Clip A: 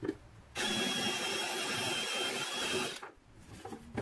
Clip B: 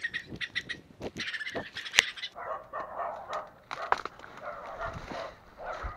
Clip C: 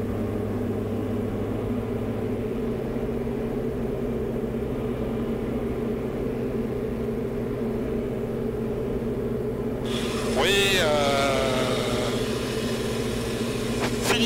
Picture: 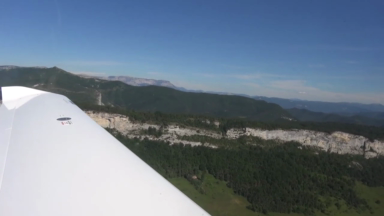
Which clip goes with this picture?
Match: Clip C